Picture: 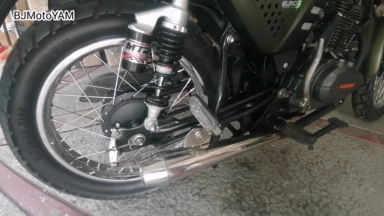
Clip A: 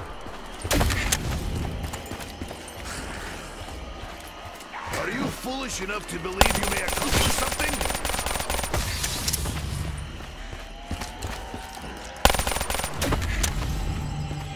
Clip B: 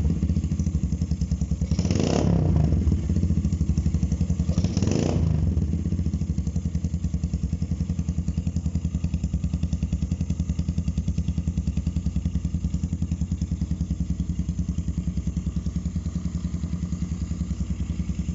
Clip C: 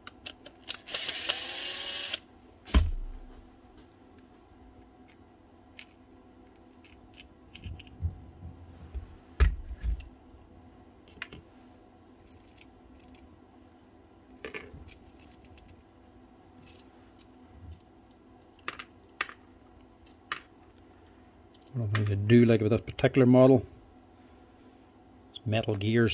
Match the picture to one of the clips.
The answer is B